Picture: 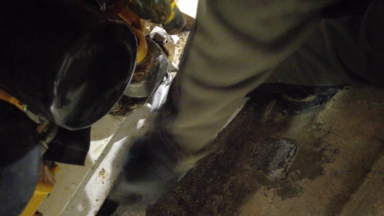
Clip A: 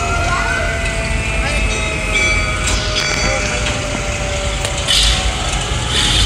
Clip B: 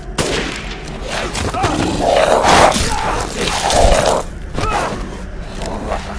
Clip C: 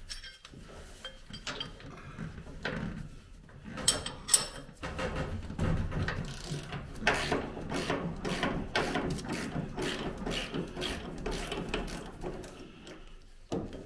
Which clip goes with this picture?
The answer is C